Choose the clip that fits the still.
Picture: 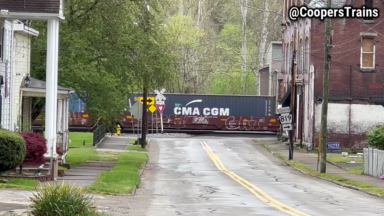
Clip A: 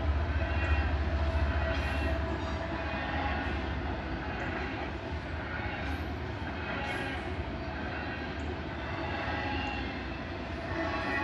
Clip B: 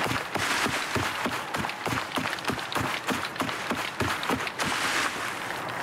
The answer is A